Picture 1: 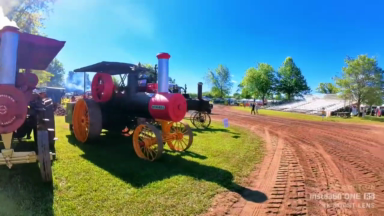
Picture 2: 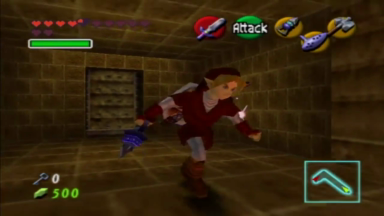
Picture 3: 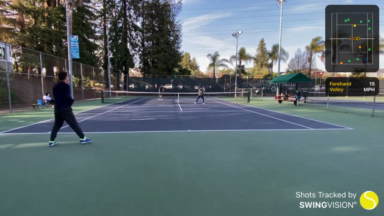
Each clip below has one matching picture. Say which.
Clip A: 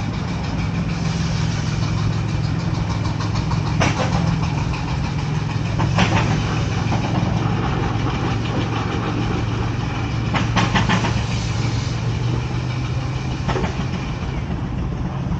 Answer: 1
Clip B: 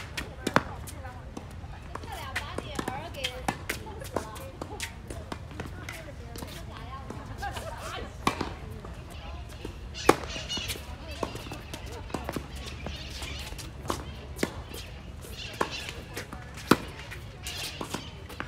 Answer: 3